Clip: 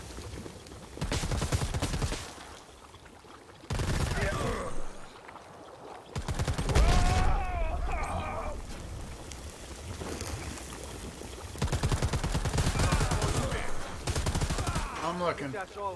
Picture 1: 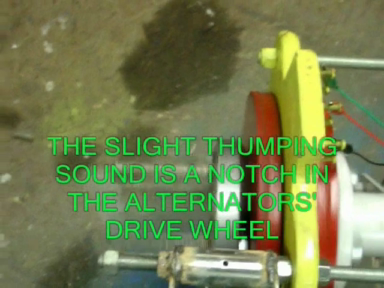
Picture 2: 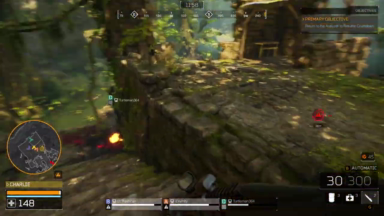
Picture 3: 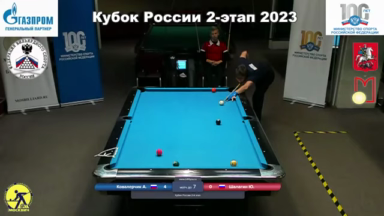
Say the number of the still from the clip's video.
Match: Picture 2